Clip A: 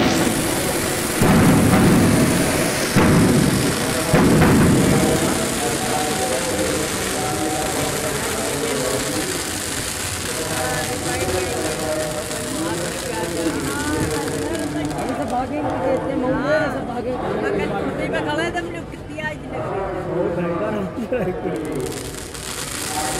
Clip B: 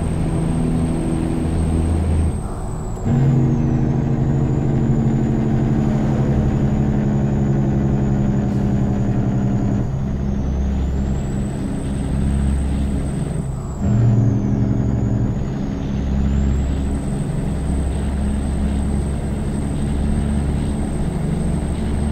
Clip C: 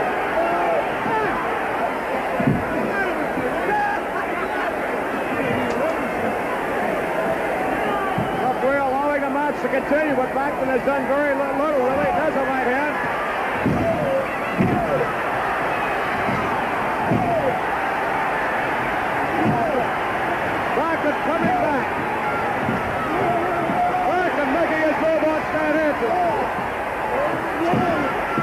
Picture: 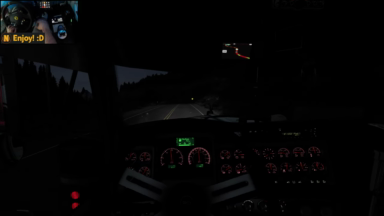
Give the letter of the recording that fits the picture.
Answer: B